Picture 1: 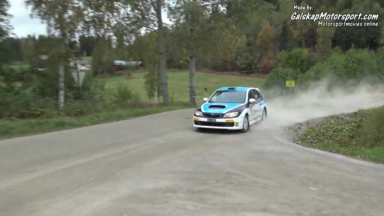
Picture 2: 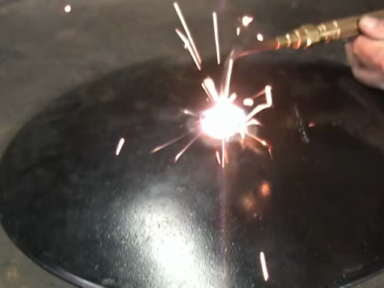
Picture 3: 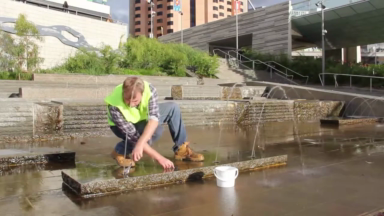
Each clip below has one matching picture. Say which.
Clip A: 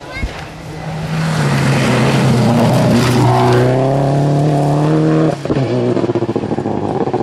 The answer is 1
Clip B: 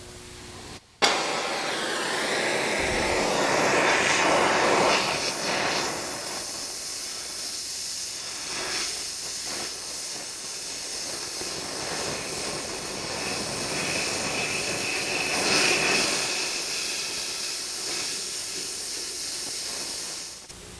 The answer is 2